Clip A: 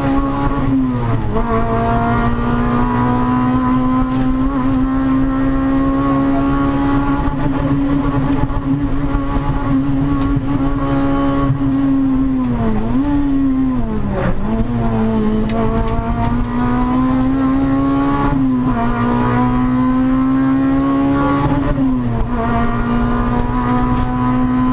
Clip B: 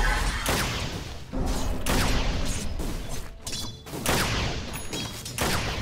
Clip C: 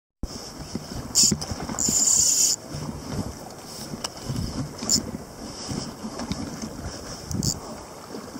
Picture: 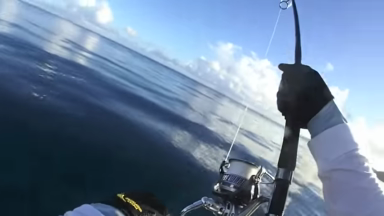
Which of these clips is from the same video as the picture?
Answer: C